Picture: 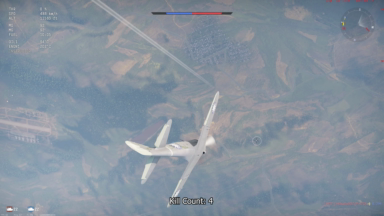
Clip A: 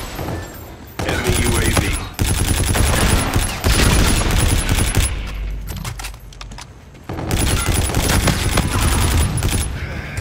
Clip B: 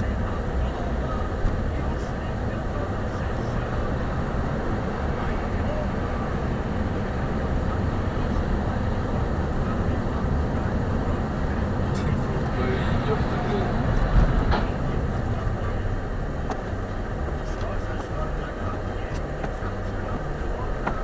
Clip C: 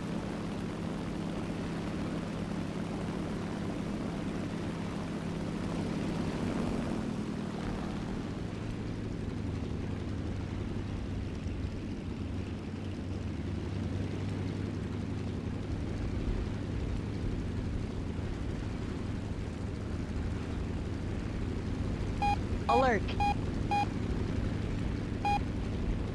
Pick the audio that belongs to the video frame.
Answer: C